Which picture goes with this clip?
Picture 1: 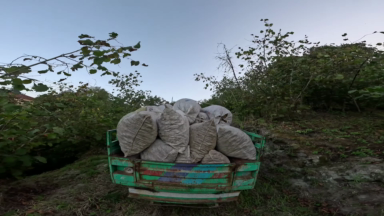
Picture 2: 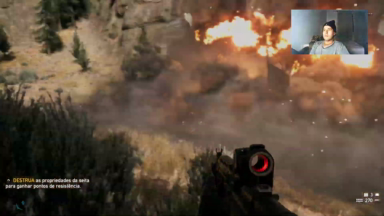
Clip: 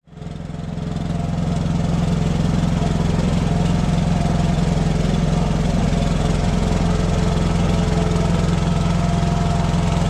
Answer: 1